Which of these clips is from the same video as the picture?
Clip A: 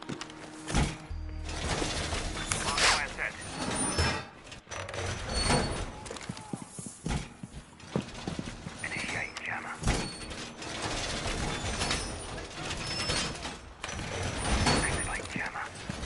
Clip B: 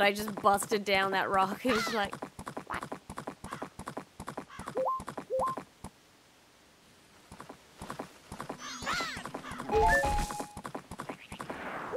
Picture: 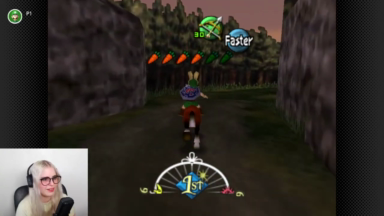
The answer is B